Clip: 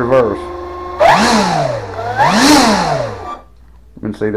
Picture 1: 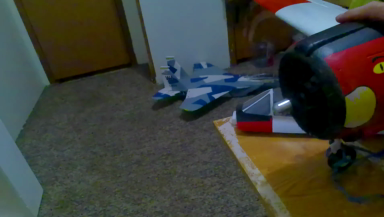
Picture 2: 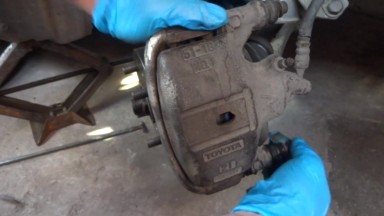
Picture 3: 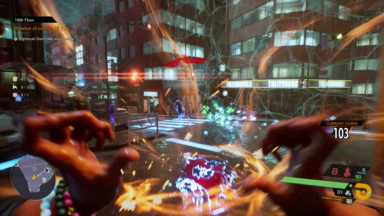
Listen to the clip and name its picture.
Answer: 1